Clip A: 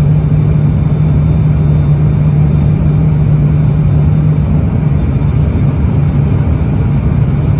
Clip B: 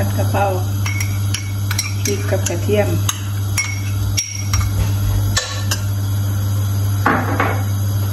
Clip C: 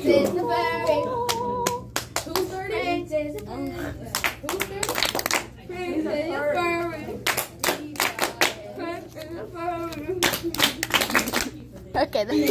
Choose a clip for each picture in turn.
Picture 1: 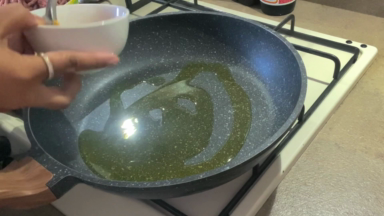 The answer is B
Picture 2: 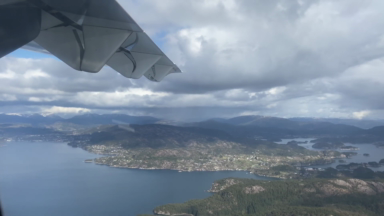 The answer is A